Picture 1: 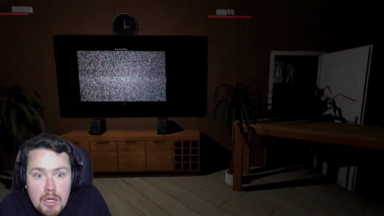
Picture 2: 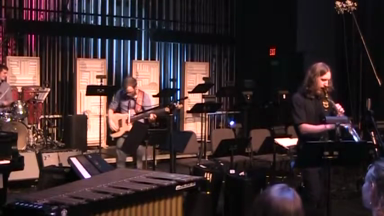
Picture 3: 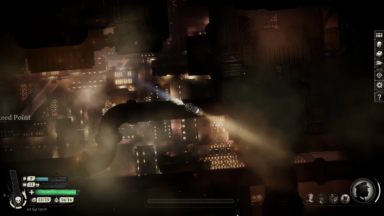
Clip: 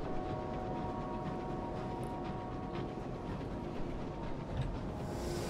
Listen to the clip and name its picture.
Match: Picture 3